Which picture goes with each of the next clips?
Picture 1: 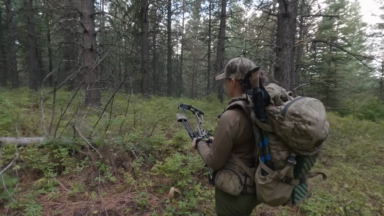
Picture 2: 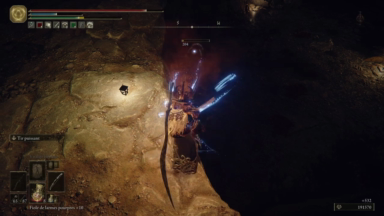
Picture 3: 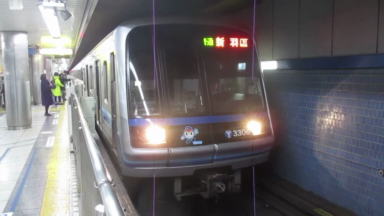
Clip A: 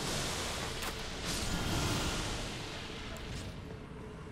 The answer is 2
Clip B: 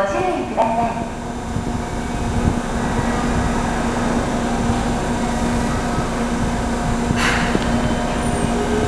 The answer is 3